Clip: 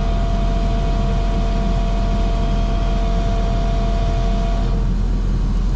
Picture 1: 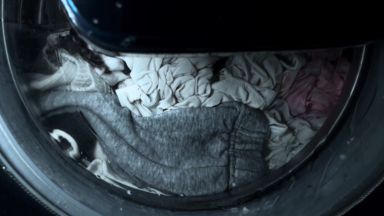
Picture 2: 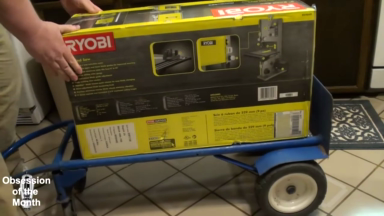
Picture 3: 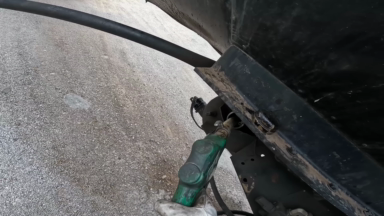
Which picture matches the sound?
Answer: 3